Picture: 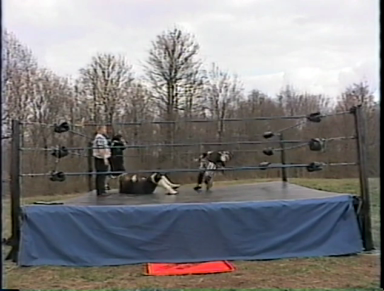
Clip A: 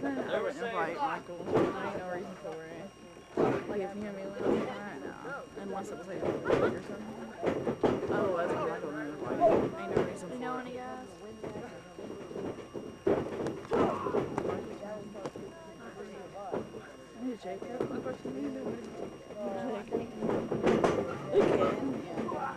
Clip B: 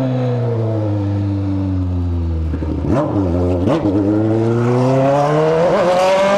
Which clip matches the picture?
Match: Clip A